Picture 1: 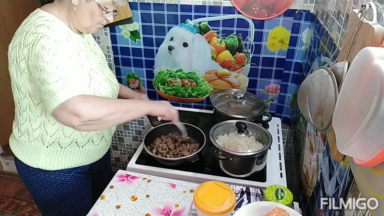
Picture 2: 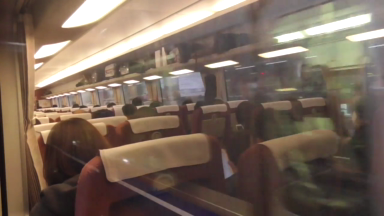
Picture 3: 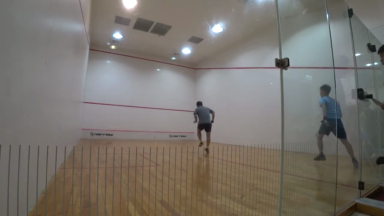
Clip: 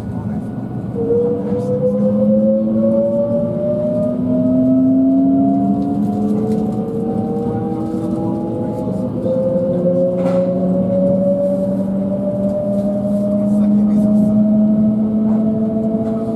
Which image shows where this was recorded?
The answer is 2